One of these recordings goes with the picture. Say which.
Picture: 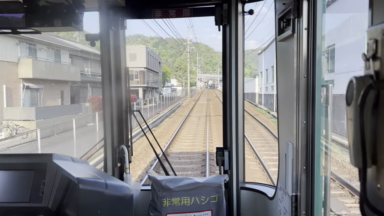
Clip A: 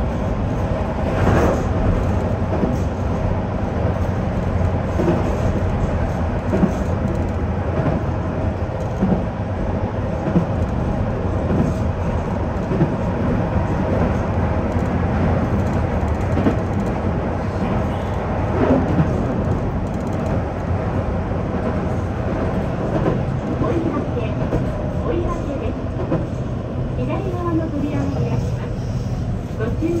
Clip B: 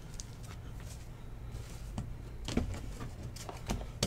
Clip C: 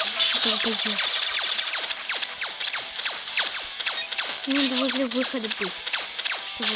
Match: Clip A